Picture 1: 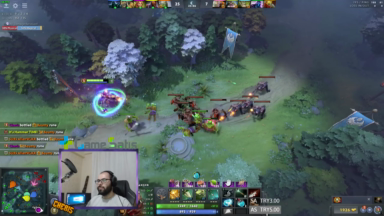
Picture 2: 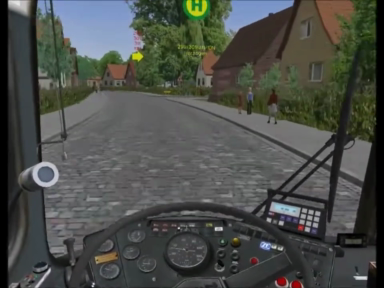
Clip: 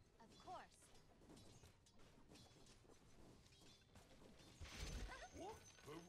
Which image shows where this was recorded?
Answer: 1